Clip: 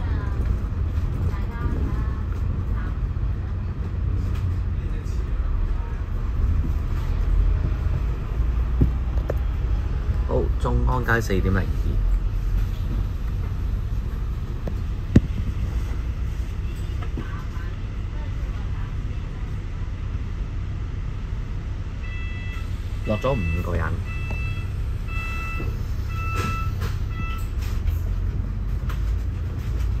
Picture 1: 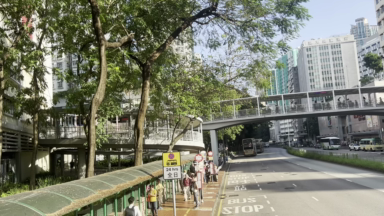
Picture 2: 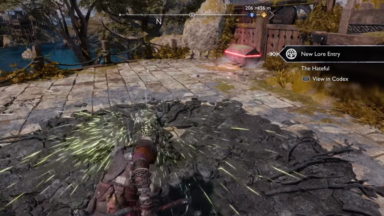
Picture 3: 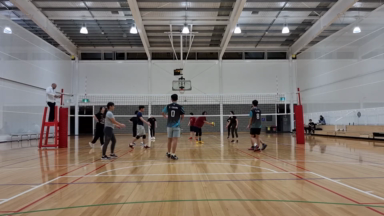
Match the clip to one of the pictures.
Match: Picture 1